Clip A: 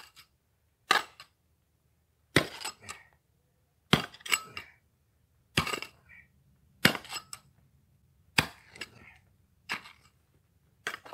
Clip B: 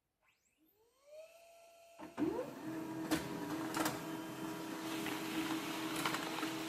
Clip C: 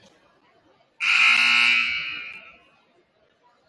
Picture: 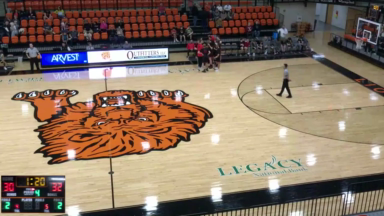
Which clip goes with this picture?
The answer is C